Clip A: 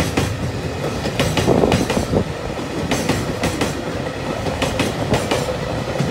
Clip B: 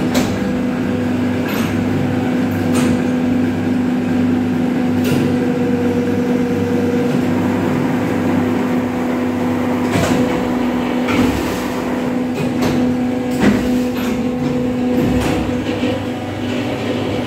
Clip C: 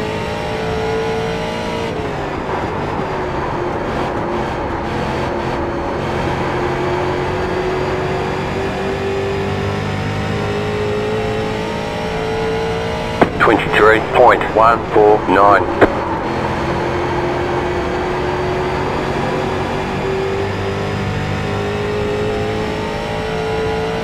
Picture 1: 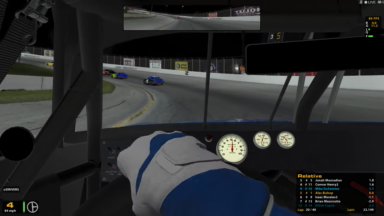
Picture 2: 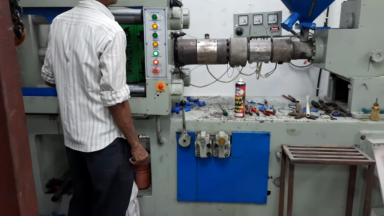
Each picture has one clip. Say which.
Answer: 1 C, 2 B